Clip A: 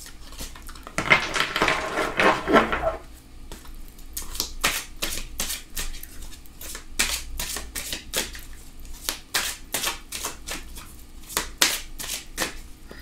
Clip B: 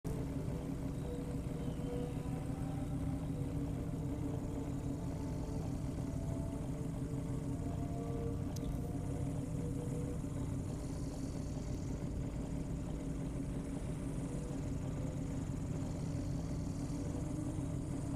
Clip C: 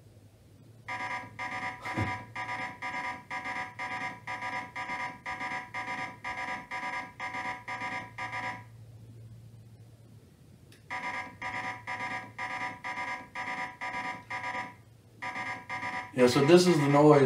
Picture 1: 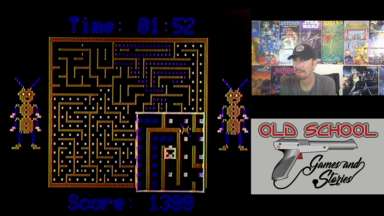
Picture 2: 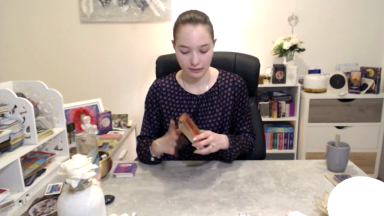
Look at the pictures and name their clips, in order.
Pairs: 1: C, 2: A